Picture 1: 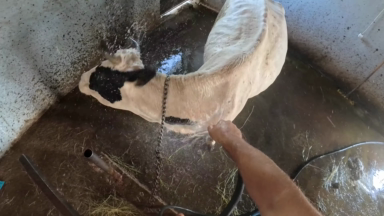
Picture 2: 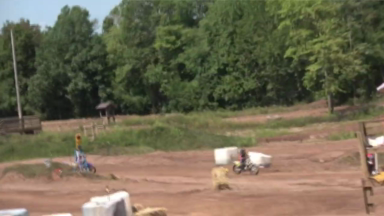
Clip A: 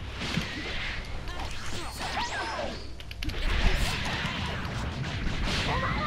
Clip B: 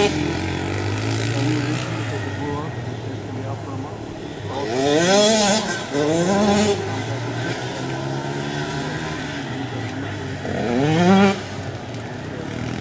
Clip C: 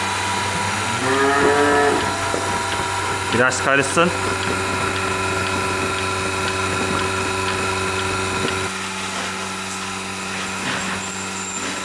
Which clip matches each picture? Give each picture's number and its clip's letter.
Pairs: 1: C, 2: B